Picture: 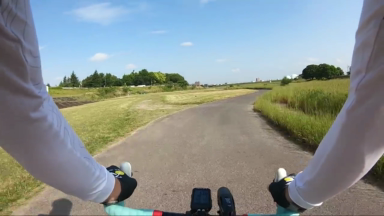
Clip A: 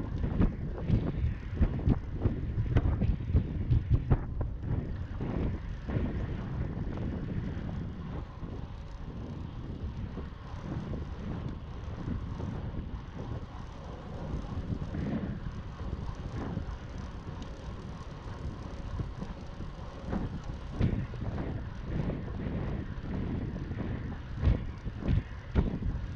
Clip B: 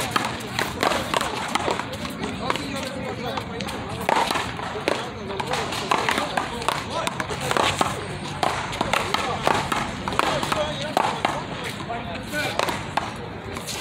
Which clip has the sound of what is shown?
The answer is A